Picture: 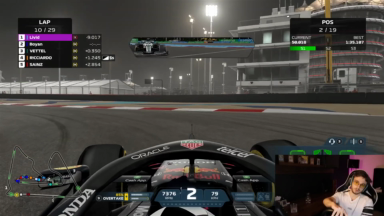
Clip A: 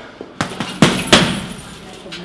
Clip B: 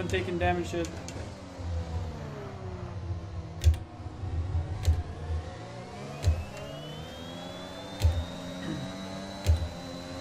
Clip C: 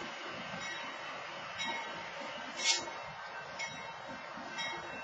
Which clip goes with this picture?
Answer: B